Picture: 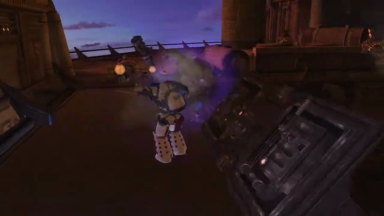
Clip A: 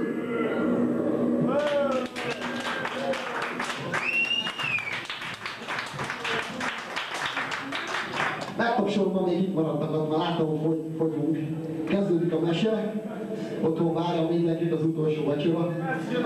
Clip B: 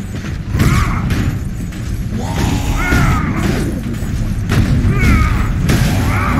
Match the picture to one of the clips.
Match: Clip B